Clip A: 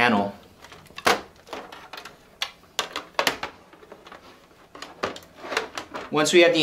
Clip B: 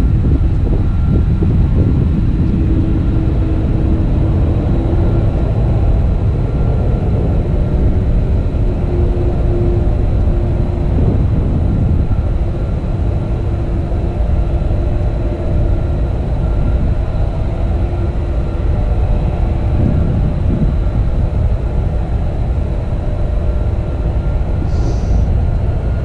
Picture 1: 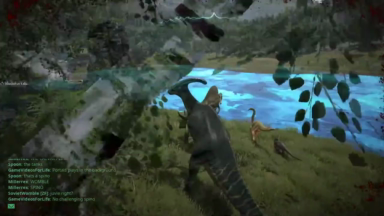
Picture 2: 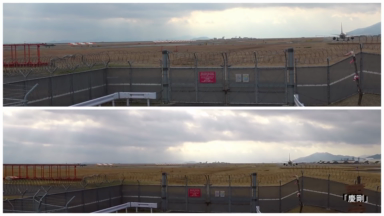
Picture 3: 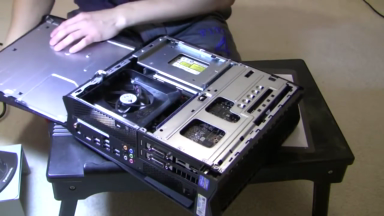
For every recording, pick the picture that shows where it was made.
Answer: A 3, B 2